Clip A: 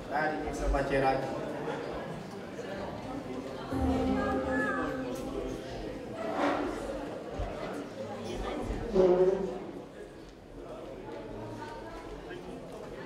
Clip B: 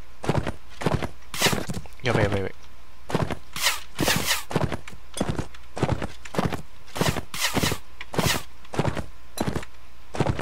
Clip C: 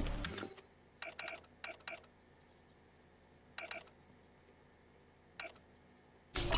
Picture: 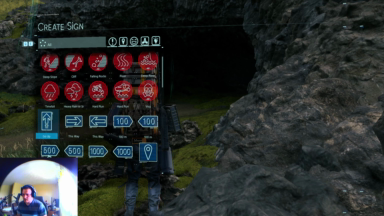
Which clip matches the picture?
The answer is C